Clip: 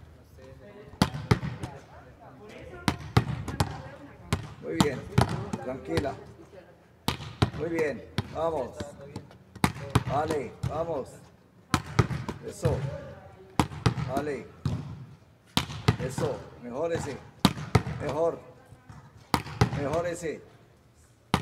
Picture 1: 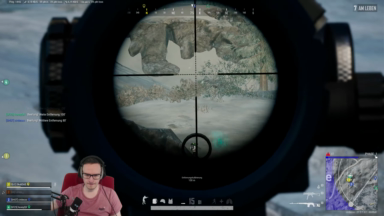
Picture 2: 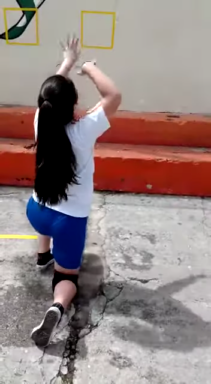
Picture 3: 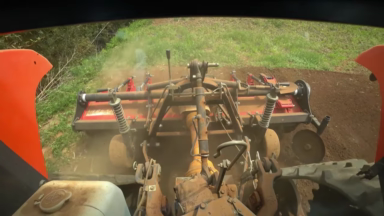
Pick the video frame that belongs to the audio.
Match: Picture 2